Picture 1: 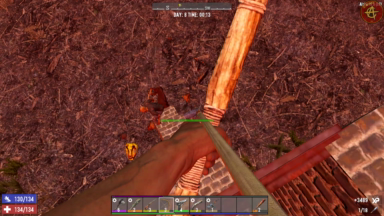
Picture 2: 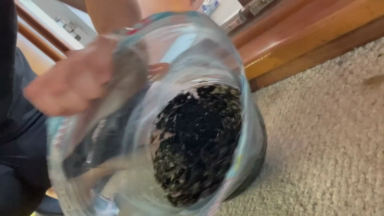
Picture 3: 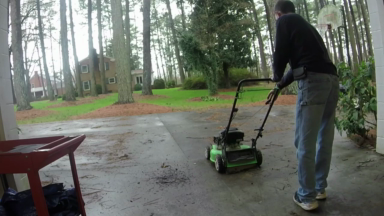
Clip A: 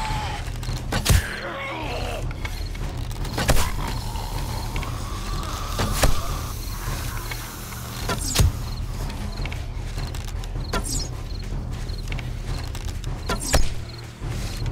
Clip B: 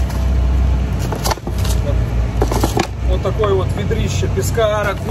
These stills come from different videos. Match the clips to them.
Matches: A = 1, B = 2